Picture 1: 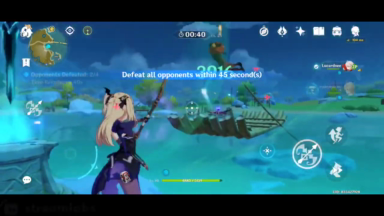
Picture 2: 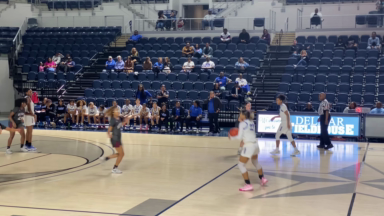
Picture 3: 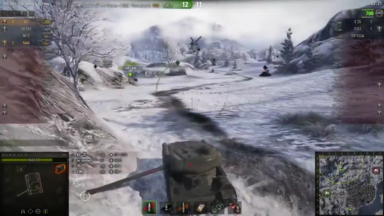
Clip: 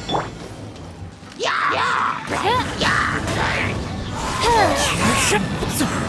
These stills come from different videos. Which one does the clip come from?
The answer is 1